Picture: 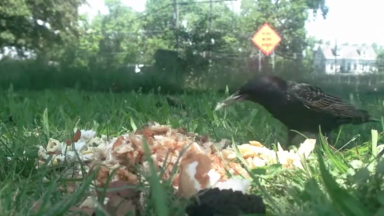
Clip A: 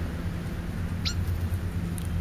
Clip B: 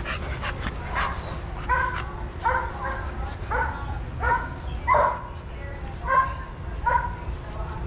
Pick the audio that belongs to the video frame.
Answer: A